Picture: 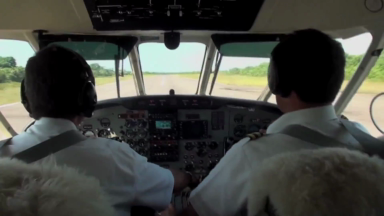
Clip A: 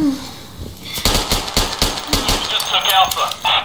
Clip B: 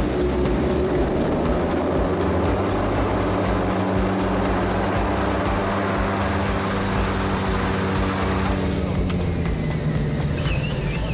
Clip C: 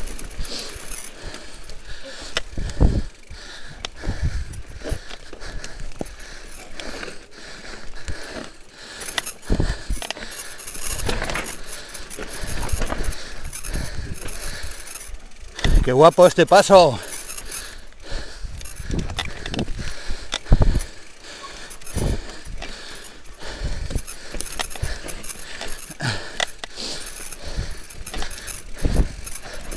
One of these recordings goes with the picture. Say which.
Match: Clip B